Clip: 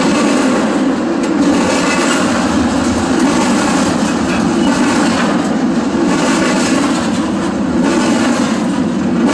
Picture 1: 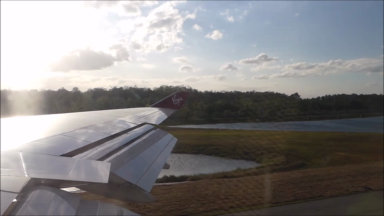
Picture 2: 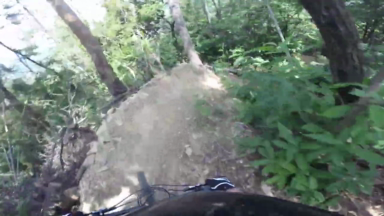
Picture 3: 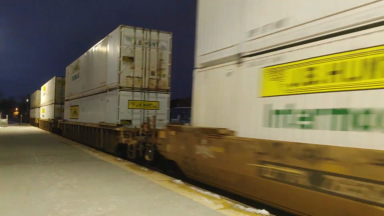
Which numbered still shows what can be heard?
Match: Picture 3